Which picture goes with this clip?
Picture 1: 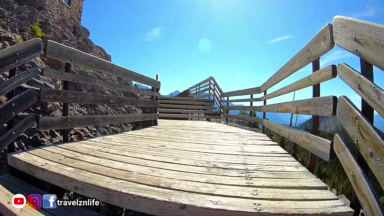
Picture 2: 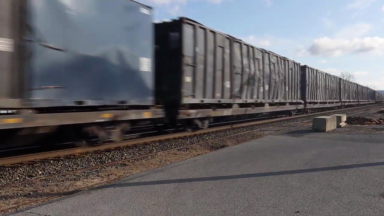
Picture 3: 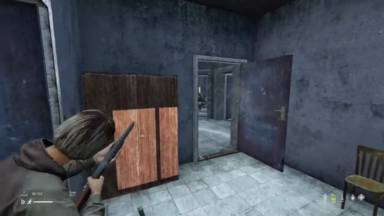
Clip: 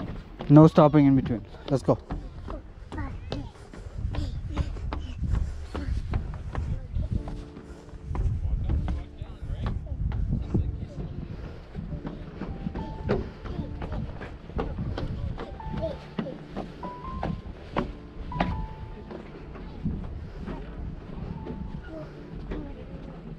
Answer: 1